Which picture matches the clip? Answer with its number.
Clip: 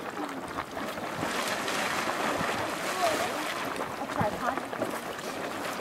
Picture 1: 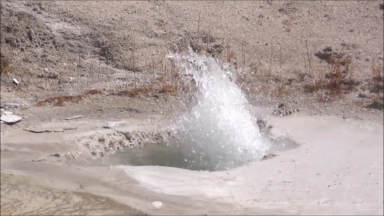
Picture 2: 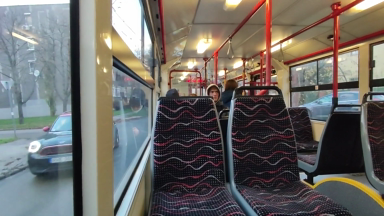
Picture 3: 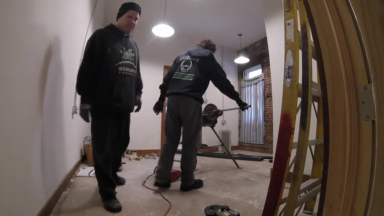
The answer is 1